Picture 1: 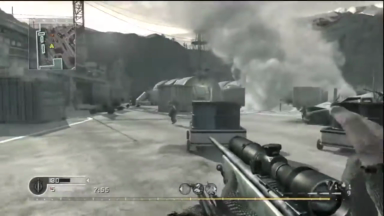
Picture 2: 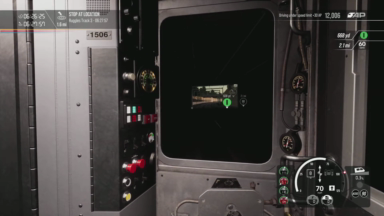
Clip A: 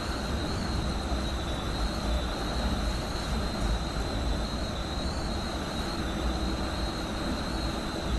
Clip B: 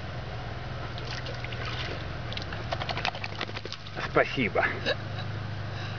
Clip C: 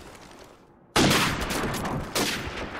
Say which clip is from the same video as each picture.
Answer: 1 C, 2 A